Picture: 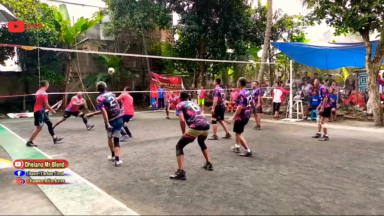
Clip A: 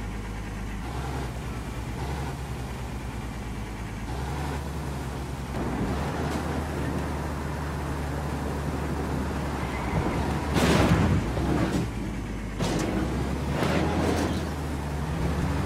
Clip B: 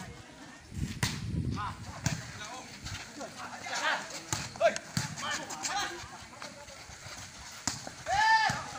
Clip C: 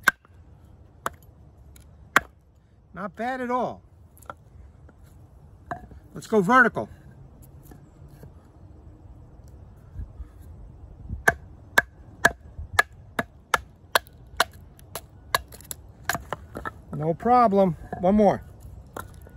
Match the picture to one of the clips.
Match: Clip B